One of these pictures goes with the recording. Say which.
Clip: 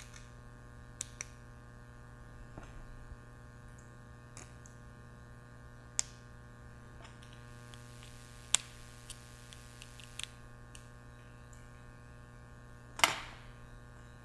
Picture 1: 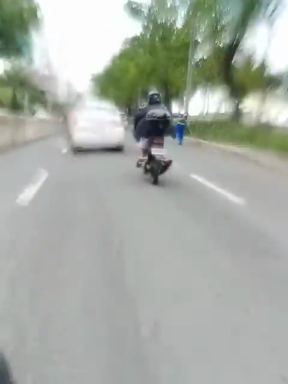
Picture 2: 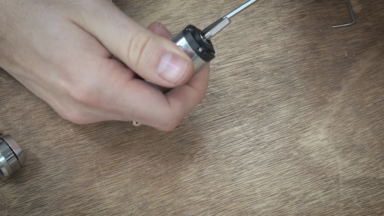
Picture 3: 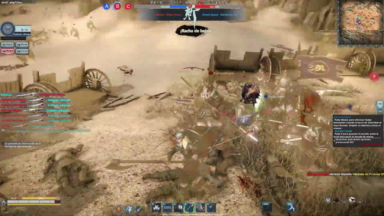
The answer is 2